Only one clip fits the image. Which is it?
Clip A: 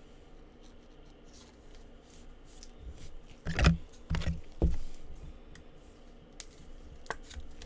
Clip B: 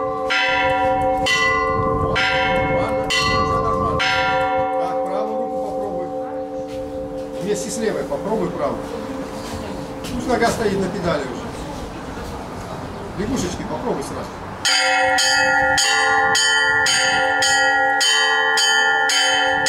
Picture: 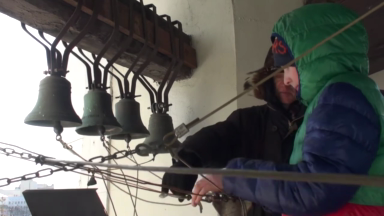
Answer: B